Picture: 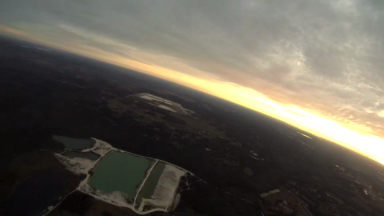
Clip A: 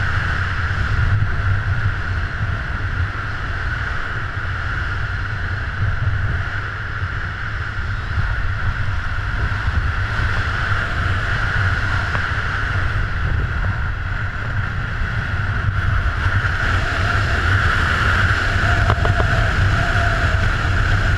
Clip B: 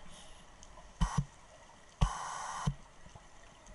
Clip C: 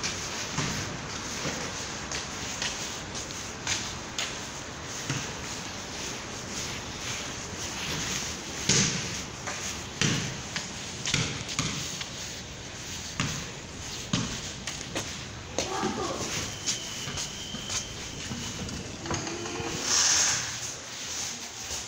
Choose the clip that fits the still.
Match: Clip A